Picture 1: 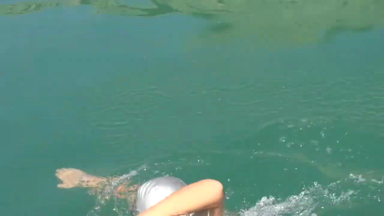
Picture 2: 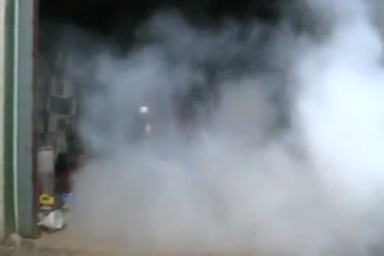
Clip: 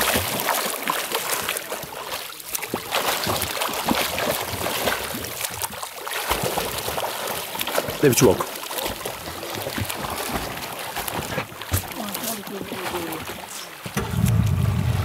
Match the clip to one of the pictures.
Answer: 1